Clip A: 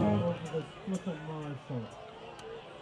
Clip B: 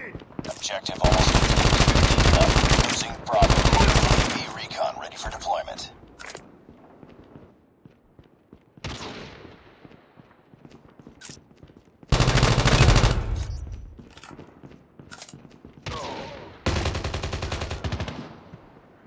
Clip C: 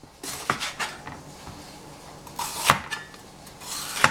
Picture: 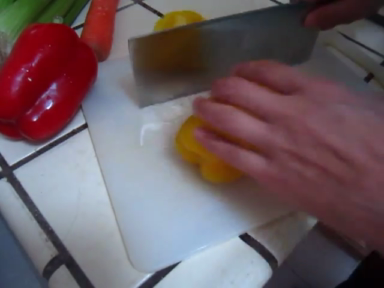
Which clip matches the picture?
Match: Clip C